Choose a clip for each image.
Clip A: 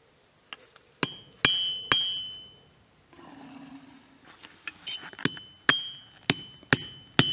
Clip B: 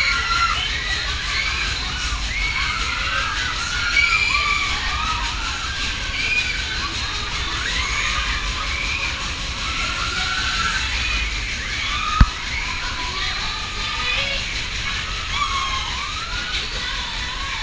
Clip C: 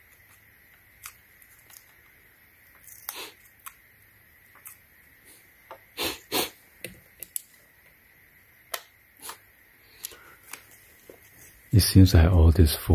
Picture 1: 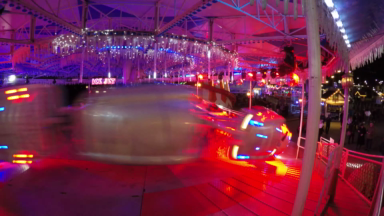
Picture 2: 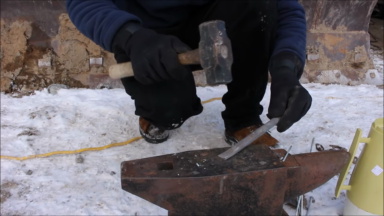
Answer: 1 B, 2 A